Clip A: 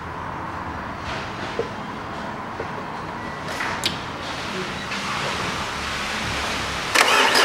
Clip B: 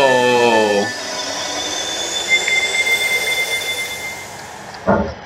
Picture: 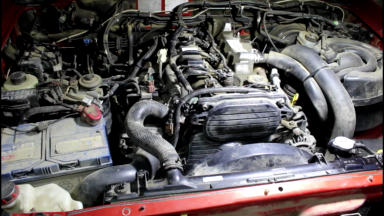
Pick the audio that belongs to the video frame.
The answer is A